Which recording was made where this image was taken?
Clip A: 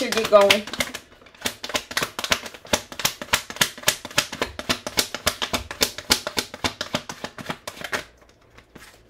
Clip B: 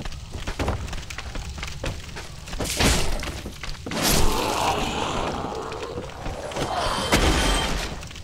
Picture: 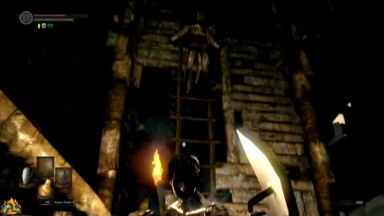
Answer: B